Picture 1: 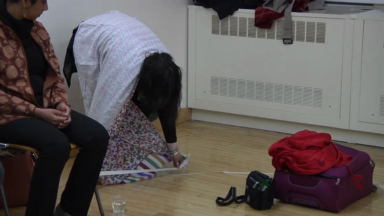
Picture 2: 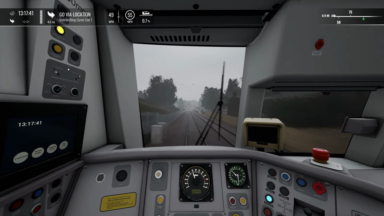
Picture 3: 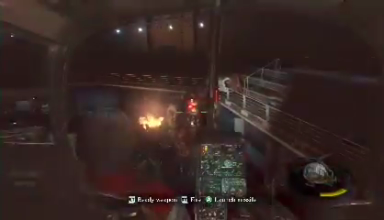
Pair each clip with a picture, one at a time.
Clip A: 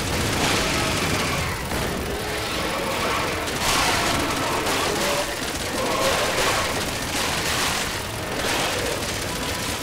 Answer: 3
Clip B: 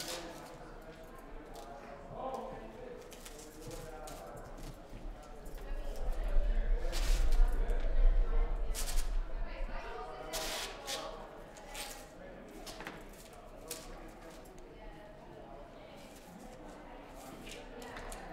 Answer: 1